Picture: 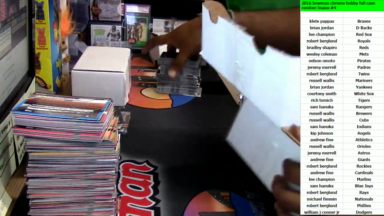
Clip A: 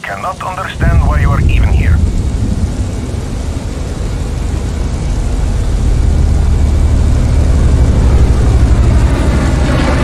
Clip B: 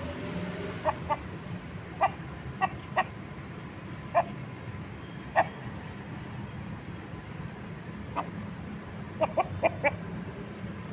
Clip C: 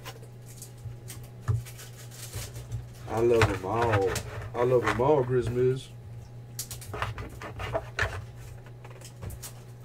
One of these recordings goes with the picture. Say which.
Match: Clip C